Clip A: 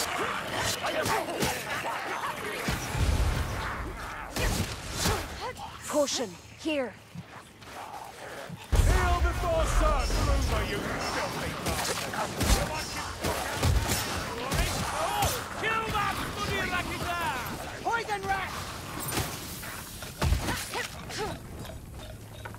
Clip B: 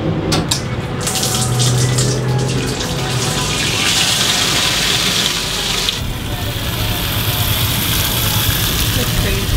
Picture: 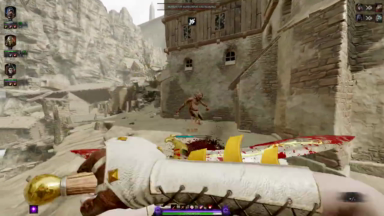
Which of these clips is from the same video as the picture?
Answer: A